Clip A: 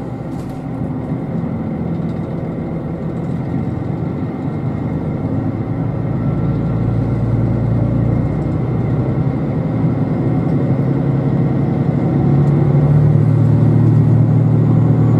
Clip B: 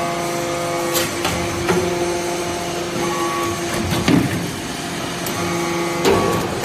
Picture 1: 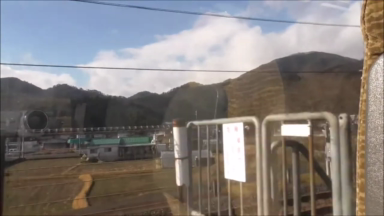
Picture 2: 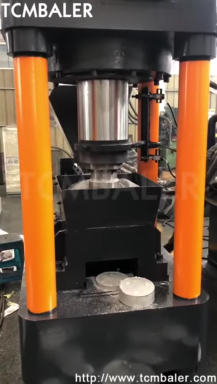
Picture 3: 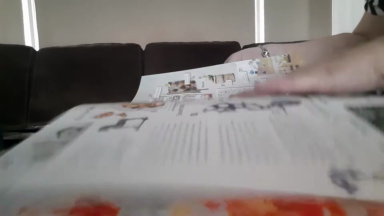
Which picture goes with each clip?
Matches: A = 1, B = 2